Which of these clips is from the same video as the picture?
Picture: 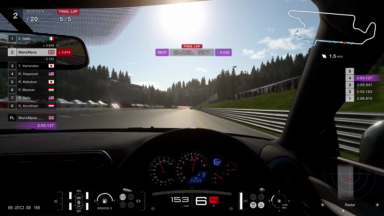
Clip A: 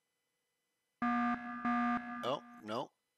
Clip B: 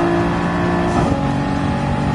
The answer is B